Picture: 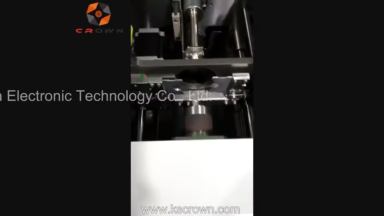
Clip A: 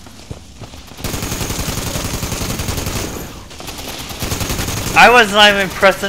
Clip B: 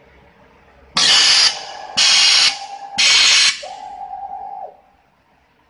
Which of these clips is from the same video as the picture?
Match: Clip B